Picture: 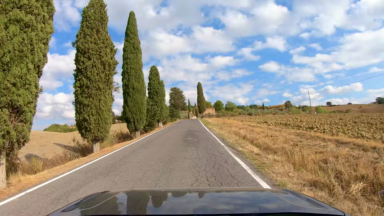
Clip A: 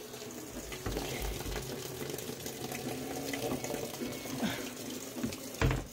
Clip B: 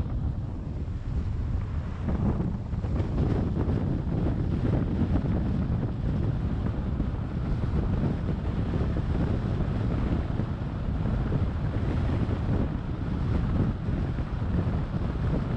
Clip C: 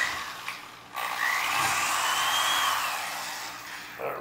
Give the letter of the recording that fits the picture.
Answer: B